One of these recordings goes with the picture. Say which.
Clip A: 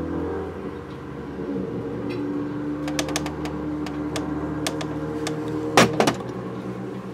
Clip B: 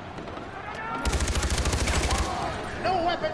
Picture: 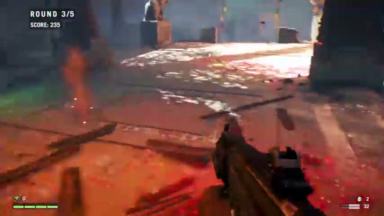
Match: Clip B